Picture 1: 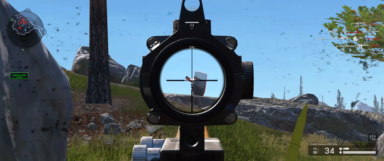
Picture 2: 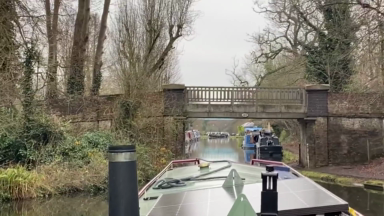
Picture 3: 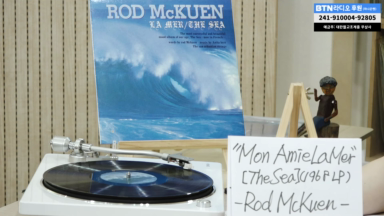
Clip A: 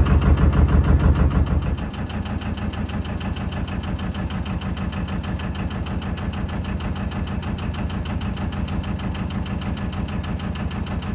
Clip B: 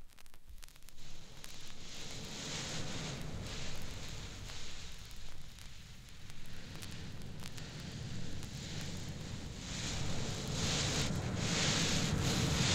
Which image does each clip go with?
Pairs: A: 2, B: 3